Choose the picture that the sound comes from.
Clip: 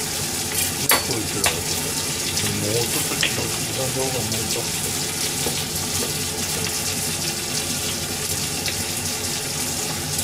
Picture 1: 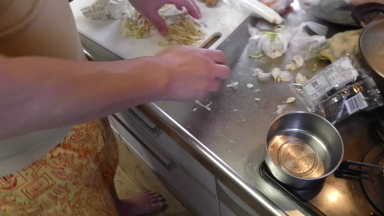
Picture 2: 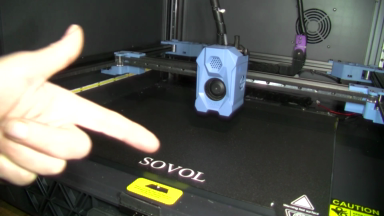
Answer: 1